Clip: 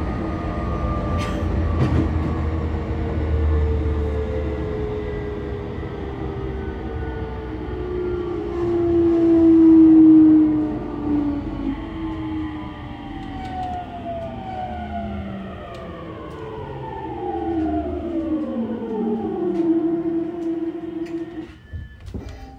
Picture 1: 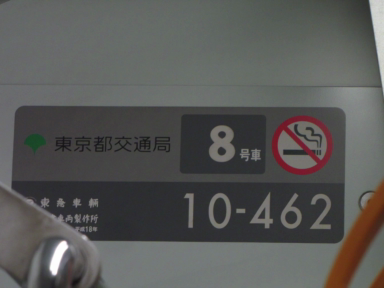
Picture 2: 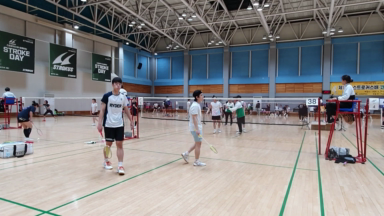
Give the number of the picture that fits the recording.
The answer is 1